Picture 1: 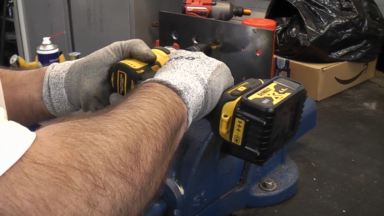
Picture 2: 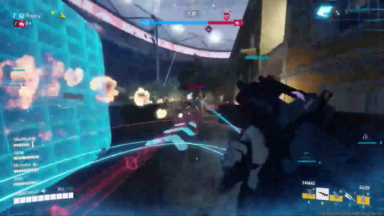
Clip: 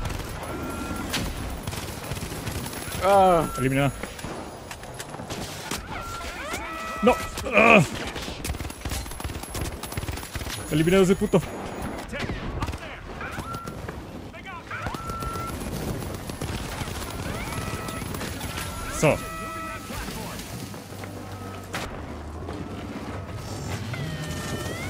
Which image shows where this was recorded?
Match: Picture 2